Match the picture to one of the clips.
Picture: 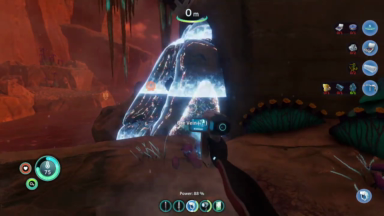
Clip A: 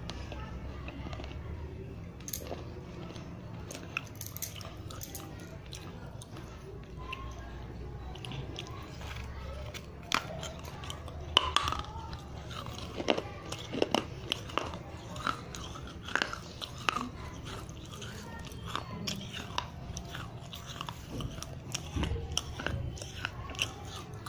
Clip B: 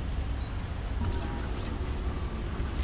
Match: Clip B